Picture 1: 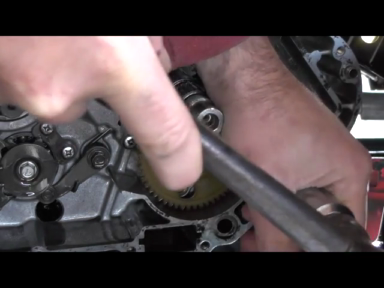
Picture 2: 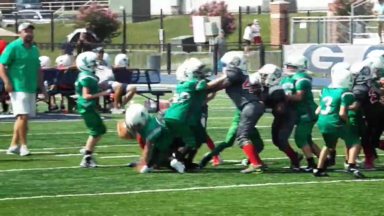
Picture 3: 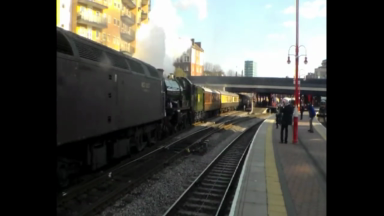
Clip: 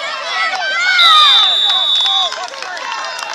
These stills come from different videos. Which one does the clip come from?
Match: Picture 2